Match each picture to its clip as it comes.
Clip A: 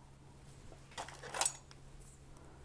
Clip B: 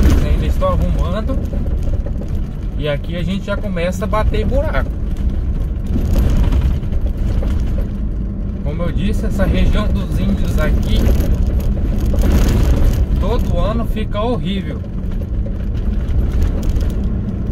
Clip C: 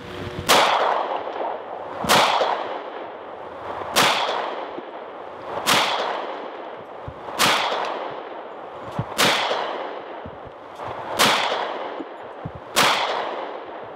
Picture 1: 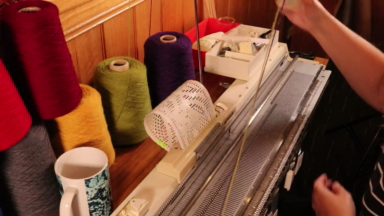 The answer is A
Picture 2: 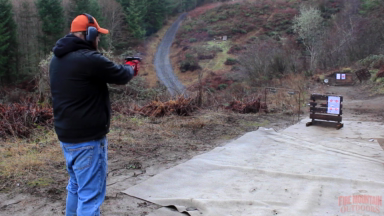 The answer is C